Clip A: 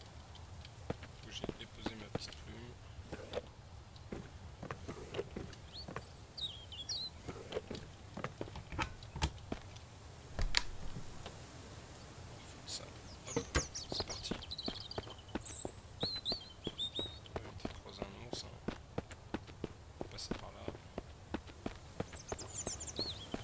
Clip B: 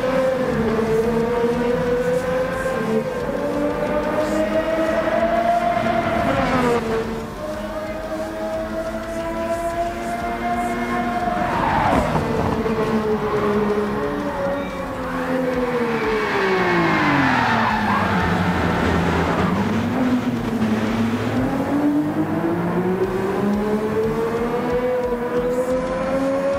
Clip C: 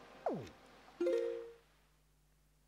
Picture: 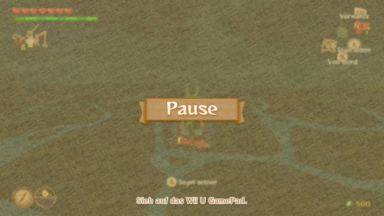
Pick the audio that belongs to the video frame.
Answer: C